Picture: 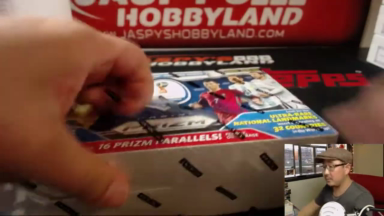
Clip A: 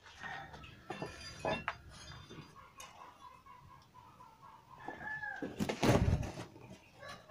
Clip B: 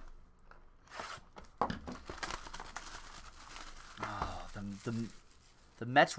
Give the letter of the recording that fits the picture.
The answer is B